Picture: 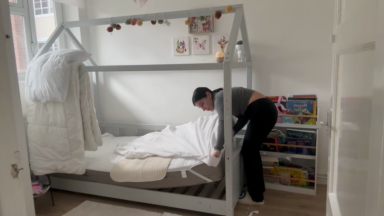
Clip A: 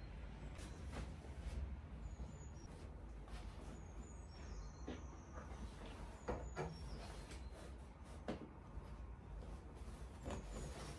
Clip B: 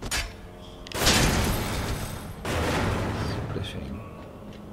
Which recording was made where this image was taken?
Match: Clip A